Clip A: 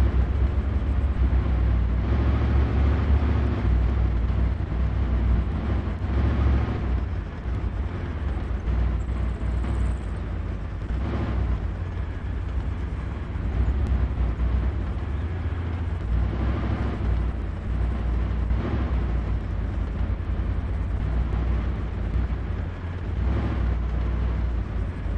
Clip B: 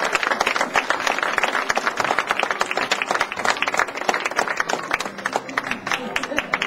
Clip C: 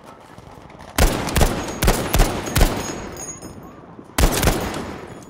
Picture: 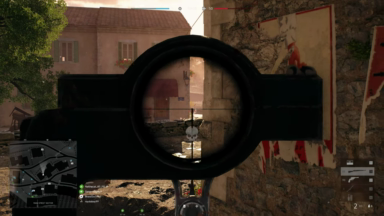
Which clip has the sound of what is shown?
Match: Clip C